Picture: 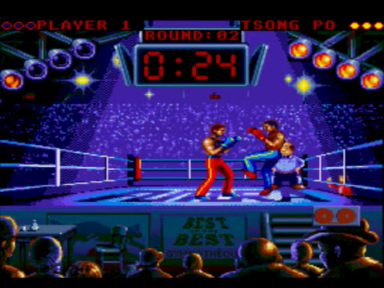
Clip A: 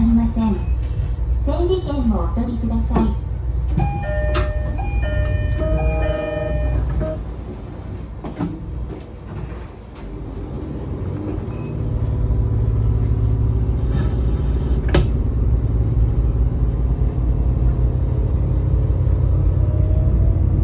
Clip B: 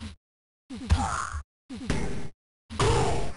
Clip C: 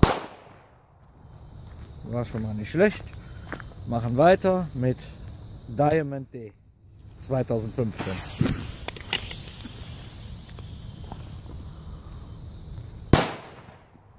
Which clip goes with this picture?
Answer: B